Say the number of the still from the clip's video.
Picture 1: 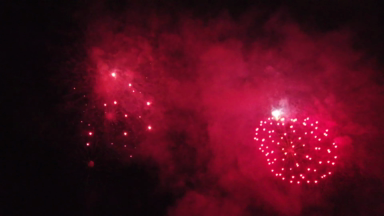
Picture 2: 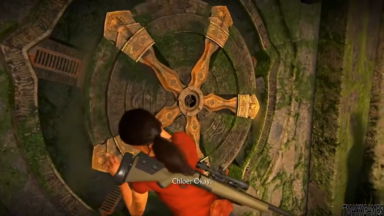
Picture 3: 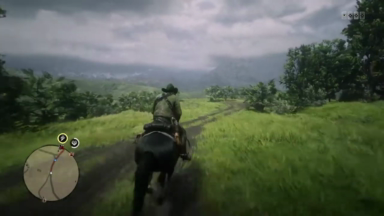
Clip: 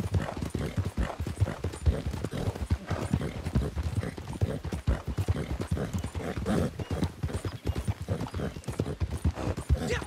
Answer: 3